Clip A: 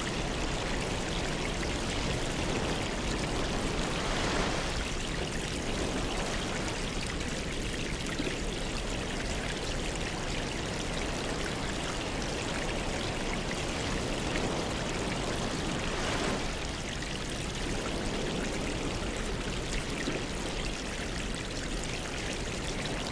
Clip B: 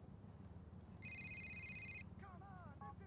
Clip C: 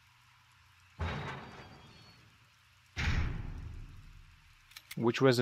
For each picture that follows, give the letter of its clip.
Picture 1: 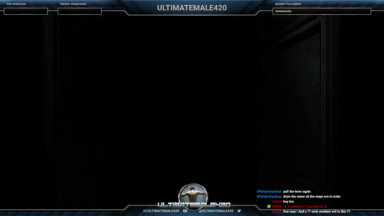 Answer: C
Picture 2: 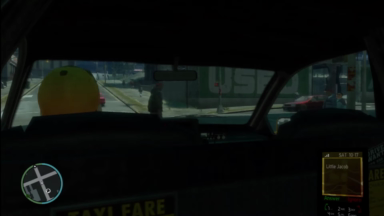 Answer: B